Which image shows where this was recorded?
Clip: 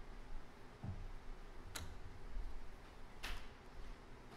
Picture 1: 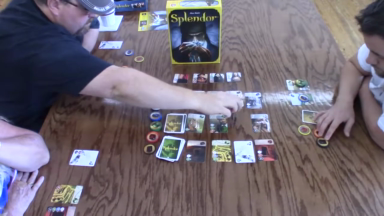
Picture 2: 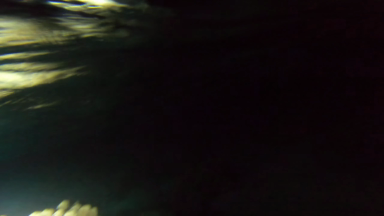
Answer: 1